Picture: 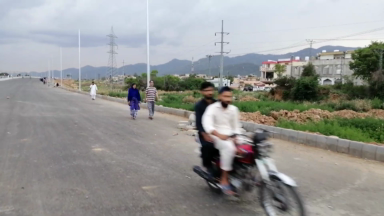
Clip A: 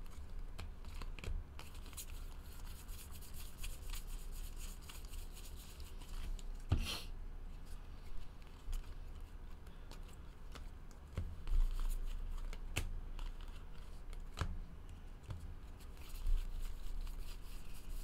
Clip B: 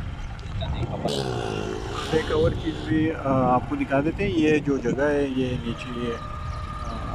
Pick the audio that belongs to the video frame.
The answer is B